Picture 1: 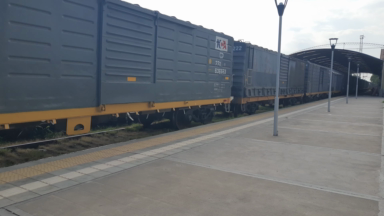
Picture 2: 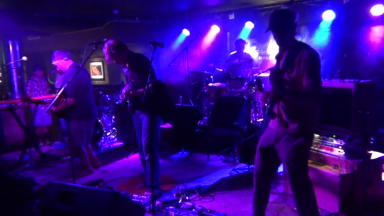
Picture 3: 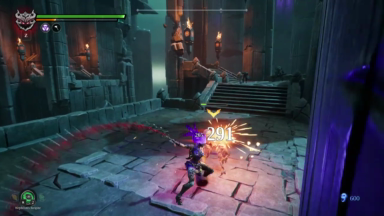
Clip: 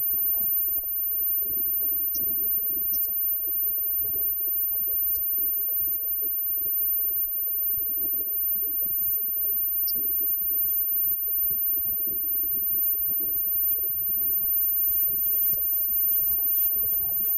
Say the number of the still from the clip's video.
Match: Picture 2